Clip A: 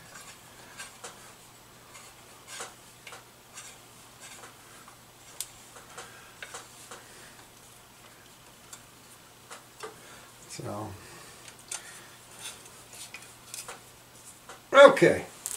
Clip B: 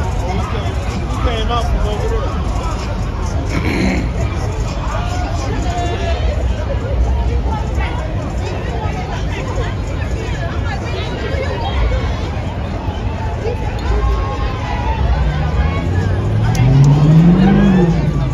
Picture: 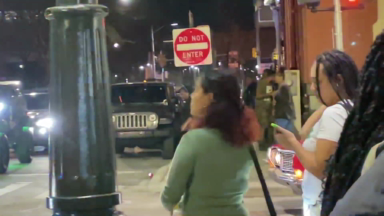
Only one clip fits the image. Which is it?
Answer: B